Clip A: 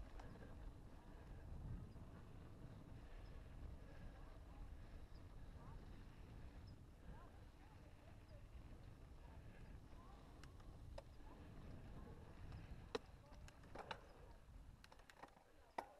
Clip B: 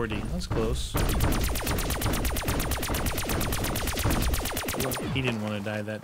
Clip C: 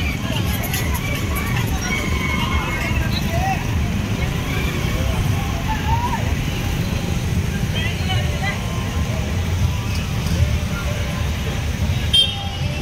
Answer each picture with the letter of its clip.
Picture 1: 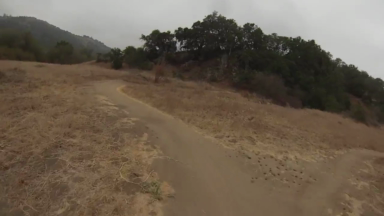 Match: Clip A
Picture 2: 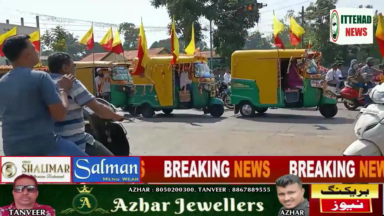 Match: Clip C